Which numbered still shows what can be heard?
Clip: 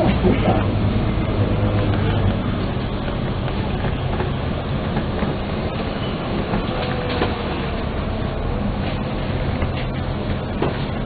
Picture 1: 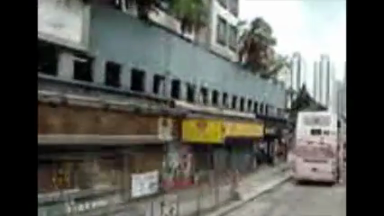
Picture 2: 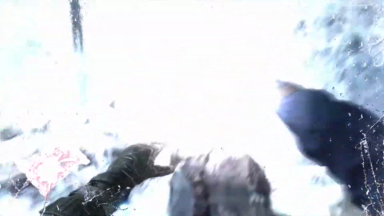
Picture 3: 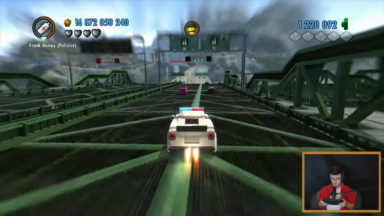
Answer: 1